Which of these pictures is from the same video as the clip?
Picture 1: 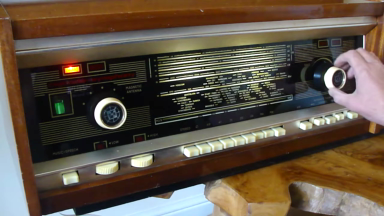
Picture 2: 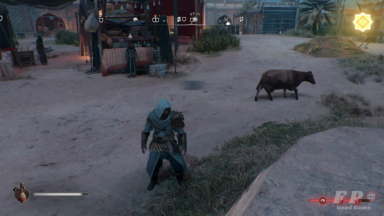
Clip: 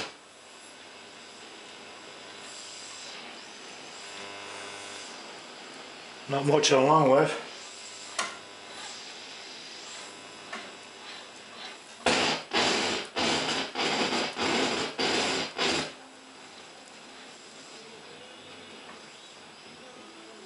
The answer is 1